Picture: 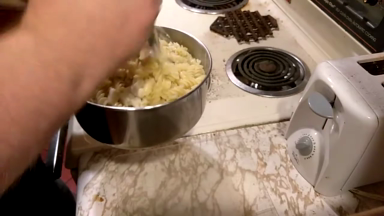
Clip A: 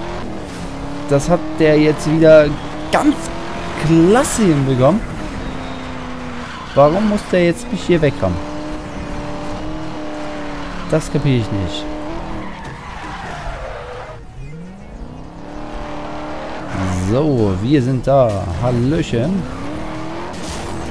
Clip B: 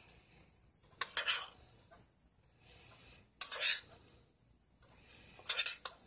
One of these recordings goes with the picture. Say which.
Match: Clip B